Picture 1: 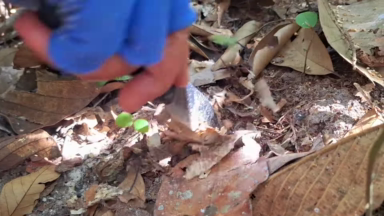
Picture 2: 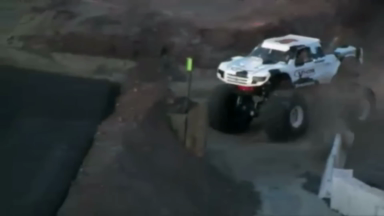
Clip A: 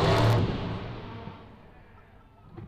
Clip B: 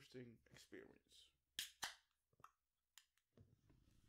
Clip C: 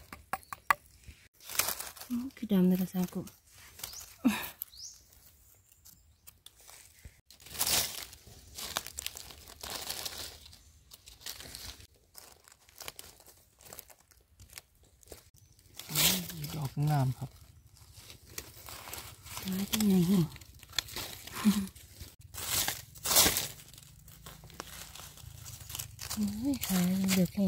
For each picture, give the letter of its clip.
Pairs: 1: C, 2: A